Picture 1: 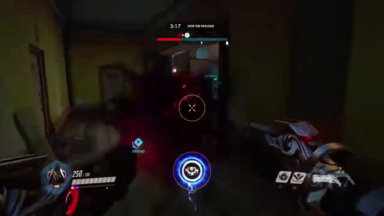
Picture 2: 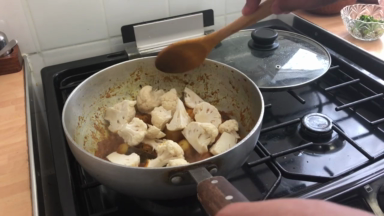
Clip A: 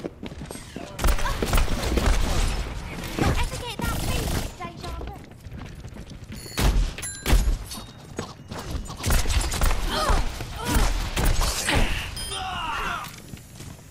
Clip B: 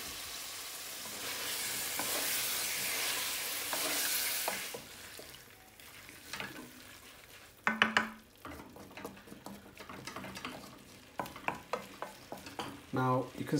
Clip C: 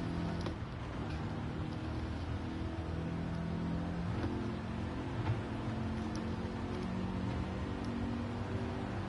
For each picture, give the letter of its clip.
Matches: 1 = A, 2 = B